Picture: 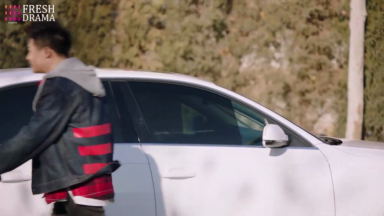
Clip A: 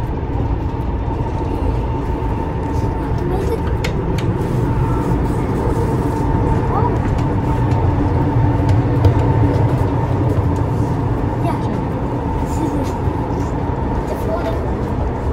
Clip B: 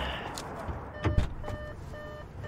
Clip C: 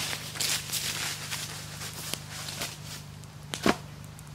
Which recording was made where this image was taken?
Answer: B